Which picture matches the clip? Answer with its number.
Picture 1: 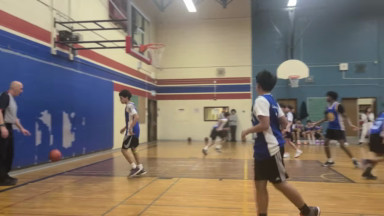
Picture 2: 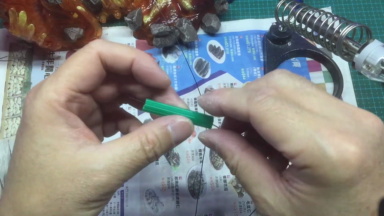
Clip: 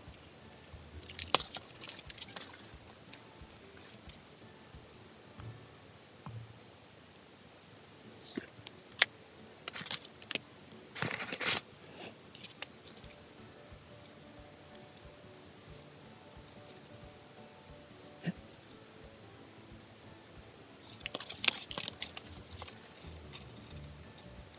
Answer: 2